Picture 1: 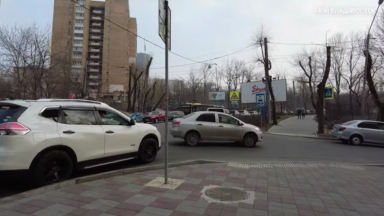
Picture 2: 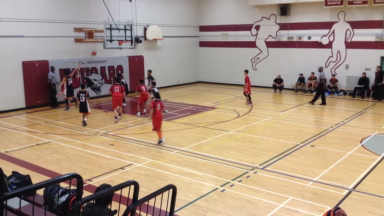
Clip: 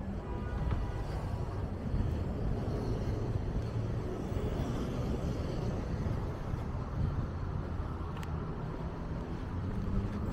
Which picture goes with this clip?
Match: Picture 1